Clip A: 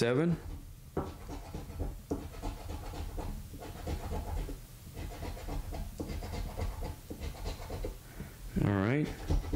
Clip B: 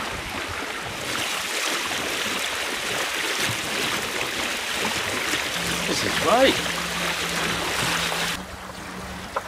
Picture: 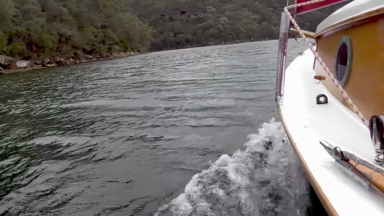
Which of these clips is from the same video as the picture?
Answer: B